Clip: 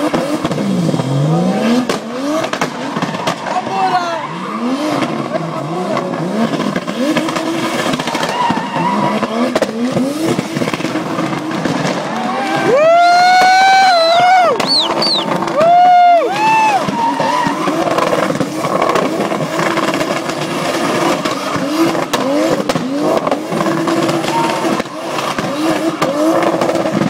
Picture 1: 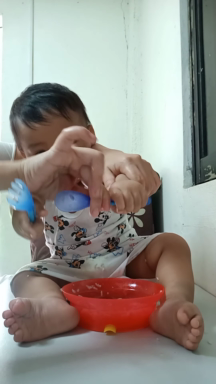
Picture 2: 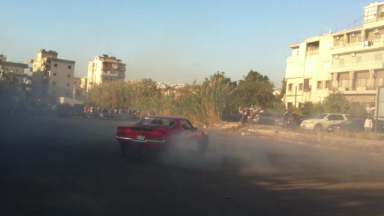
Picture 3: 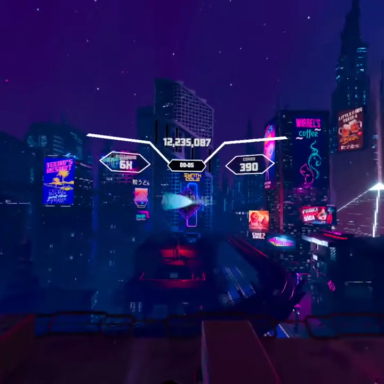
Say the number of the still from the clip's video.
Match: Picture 2